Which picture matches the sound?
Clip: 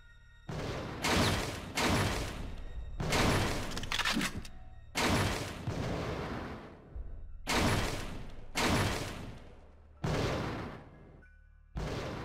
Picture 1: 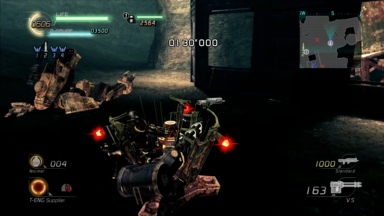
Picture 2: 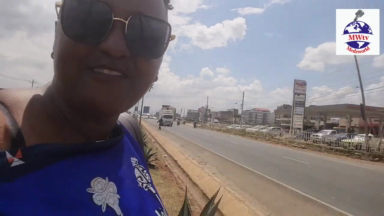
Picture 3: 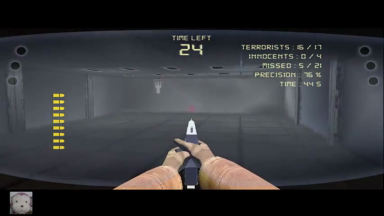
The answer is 3